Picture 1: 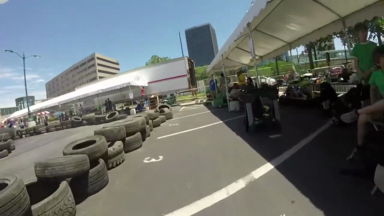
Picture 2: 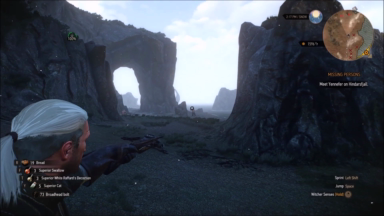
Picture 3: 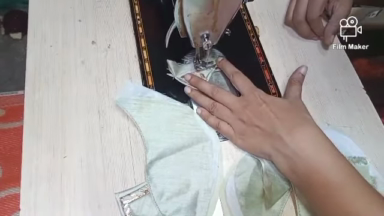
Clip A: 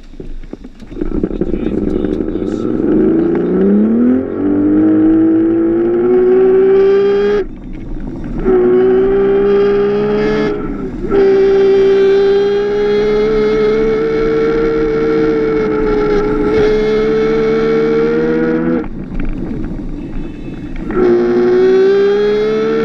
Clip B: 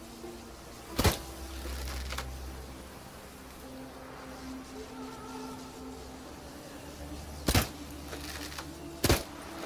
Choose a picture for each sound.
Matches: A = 1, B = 2